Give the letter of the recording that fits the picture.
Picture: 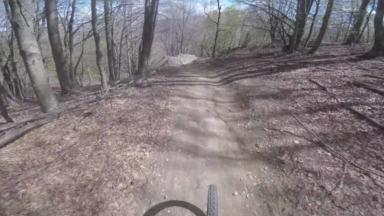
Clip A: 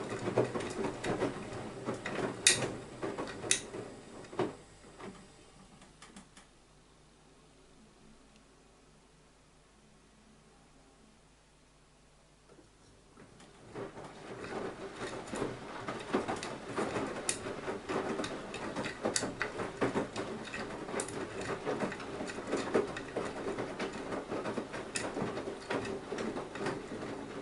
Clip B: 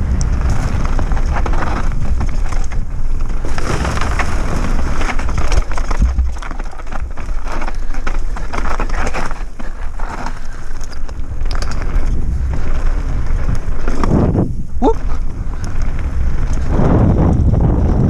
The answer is B